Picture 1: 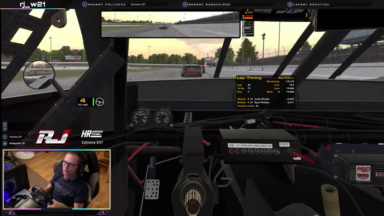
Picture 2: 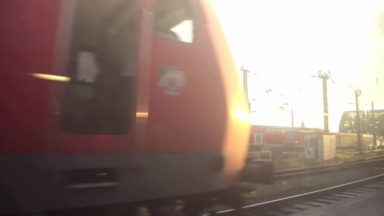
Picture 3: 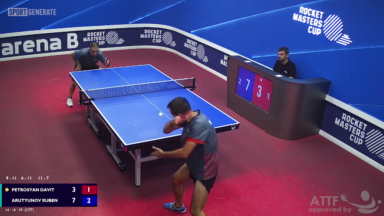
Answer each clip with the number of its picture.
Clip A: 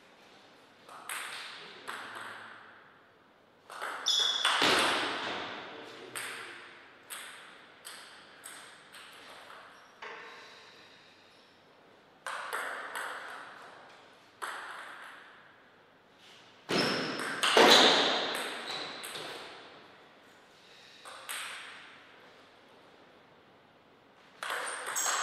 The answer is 3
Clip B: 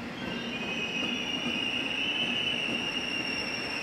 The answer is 2